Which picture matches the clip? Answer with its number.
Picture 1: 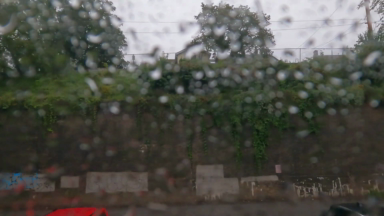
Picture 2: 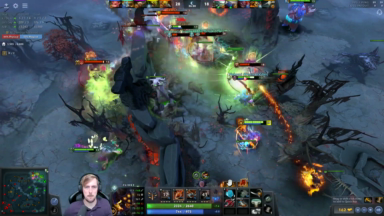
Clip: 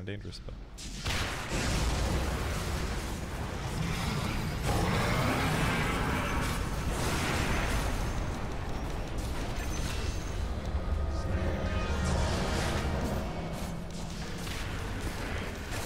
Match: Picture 2